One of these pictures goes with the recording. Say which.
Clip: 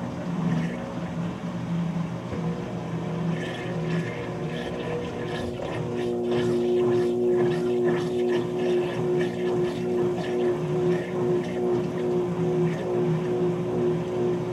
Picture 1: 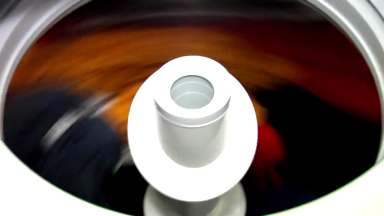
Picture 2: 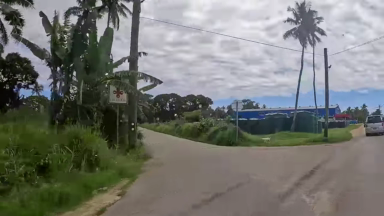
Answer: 1